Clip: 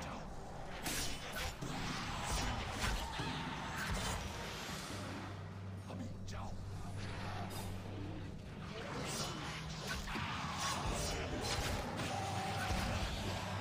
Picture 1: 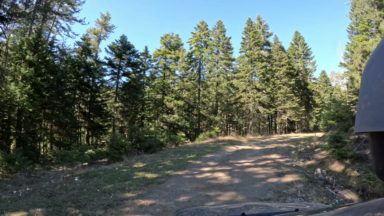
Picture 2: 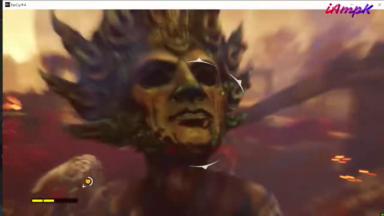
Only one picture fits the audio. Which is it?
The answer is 2